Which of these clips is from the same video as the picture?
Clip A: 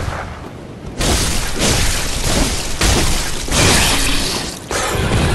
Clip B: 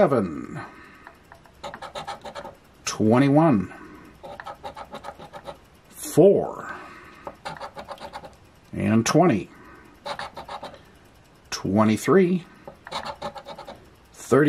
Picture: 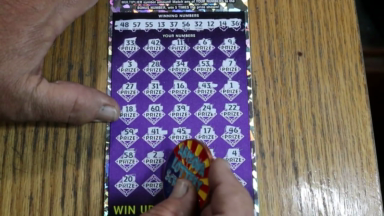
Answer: B